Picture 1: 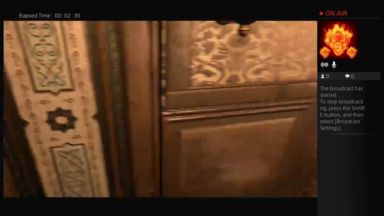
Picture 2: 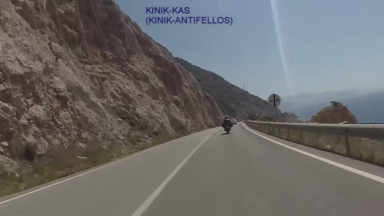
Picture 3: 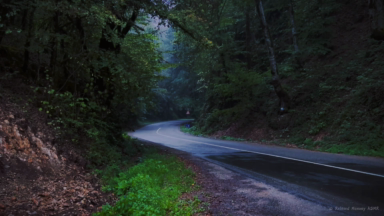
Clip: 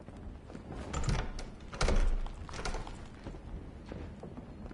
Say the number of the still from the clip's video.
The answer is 1